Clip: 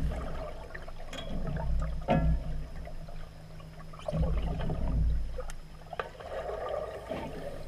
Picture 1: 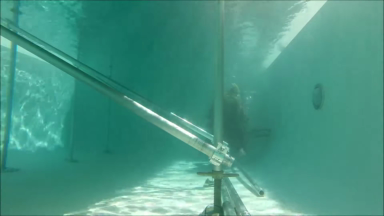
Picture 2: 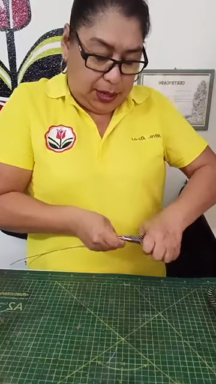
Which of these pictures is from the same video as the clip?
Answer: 1